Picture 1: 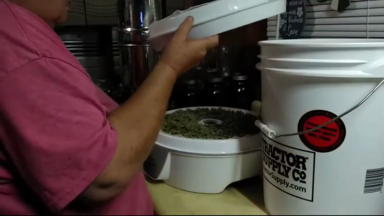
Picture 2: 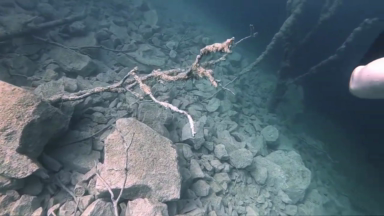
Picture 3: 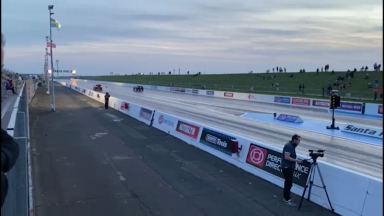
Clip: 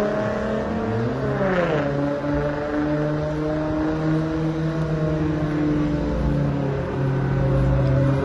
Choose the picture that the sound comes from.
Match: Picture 3